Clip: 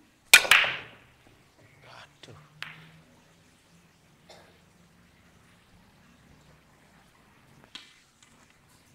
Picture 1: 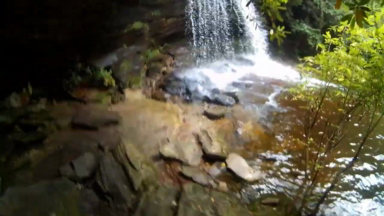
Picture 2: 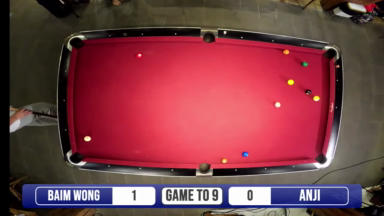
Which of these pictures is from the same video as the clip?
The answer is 2